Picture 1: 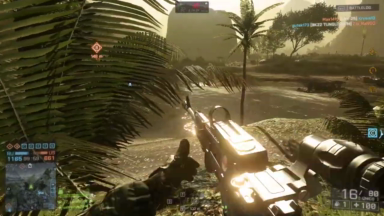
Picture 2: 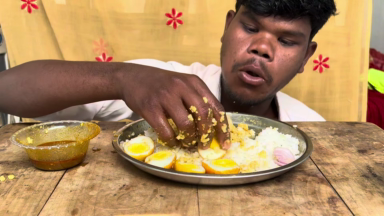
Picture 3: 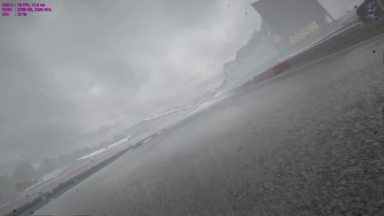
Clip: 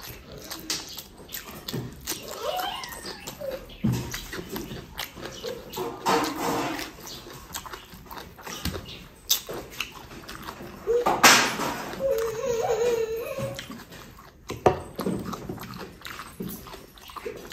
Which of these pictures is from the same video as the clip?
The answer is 2